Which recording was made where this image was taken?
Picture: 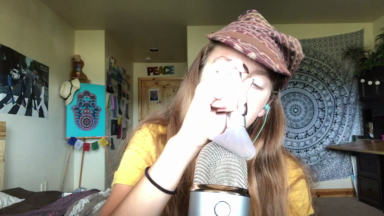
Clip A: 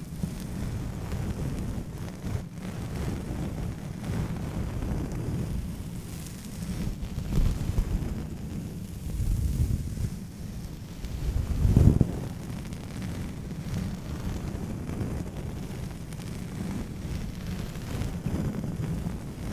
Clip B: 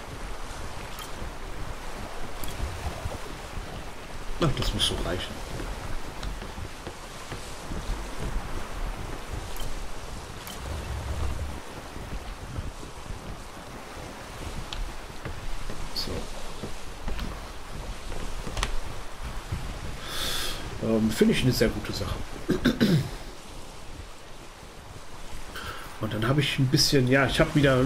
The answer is A